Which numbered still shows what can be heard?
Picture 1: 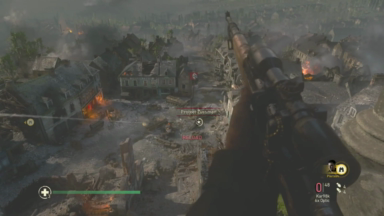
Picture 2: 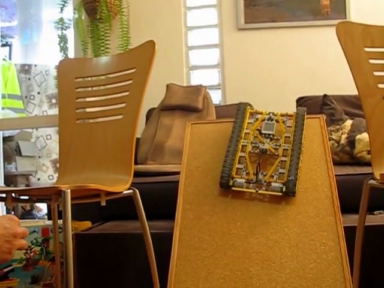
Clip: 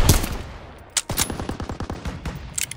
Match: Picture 1